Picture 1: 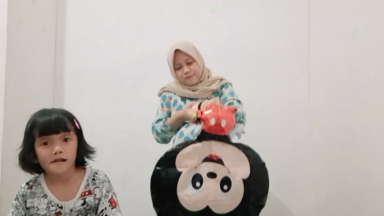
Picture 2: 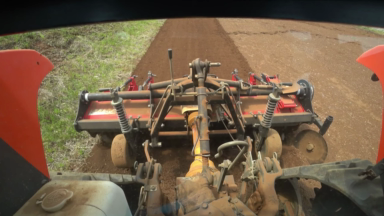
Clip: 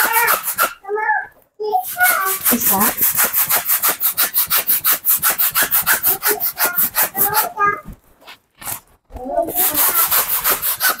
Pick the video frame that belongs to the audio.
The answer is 1